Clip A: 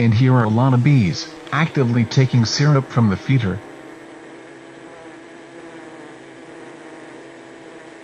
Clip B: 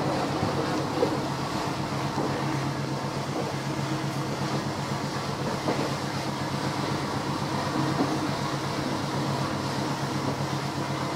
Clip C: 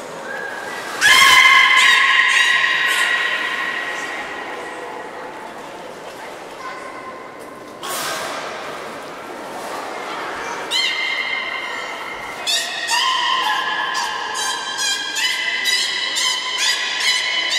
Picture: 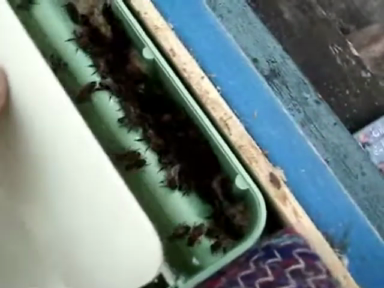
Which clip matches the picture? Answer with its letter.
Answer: A